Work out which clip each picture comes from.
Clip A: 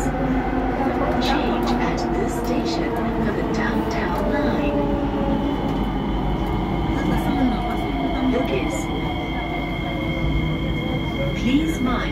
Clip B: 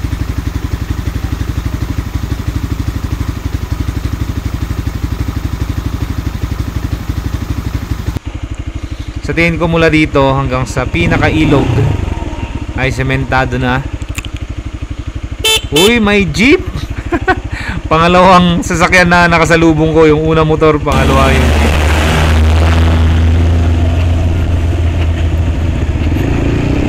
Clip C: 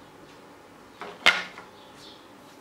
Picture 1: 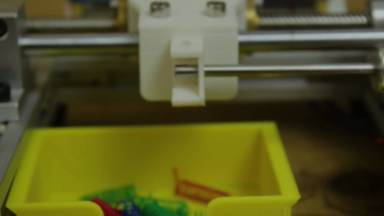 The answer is C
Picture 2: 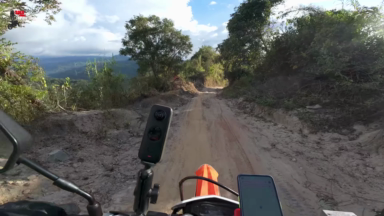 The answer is B